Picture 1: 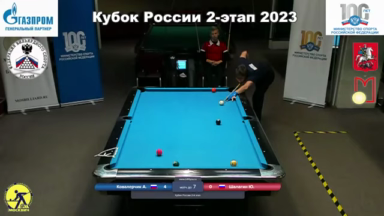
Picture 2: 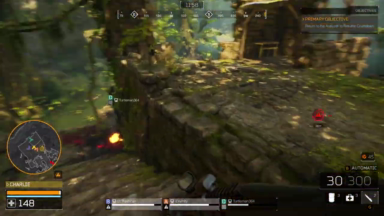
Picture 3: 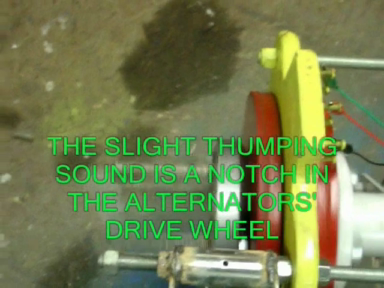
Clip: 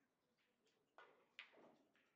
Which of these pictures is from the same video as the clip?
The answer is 1